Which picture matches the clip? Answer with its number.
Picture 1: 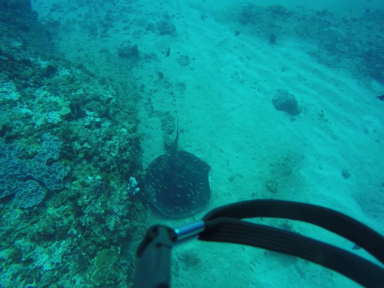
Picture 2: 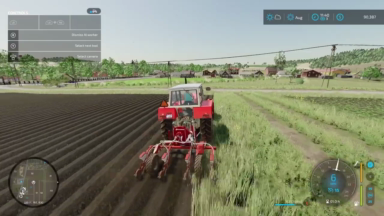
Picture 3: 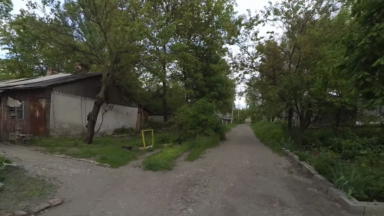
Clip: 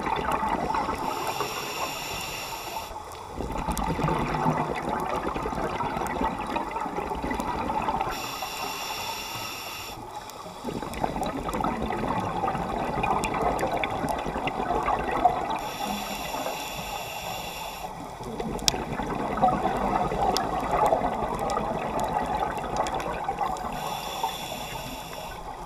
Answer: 1